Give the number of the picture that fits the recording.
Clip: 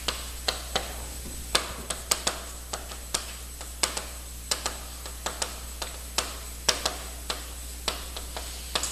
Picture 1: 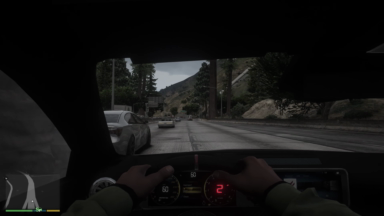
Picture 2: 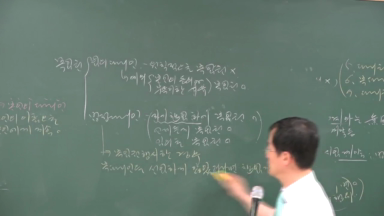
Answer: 2